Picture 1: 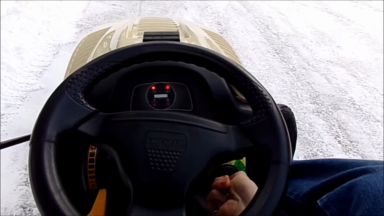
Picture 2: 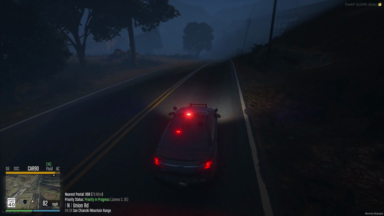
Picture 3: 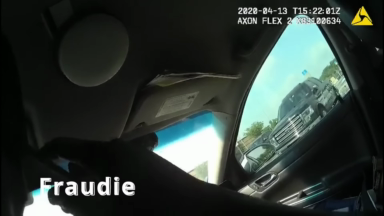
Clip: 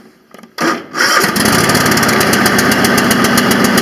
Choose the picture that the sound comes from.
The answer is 1